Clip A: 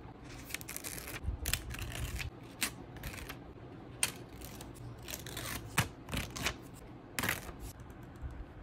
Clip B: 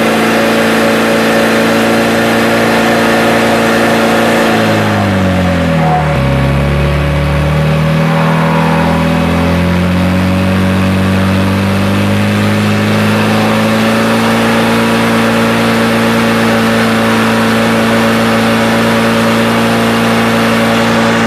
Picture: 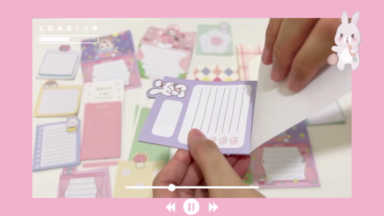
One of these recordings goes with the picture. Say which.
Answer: A